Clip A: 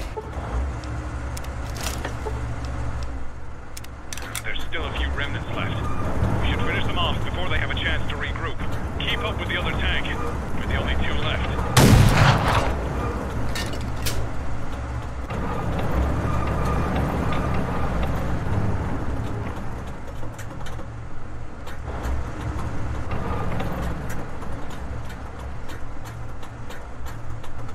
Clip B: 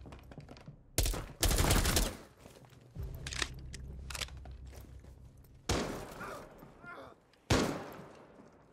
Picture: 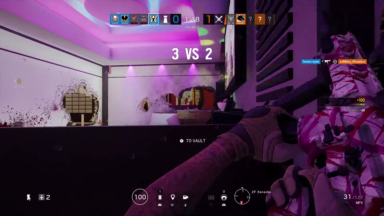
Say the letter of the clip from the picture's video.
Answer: B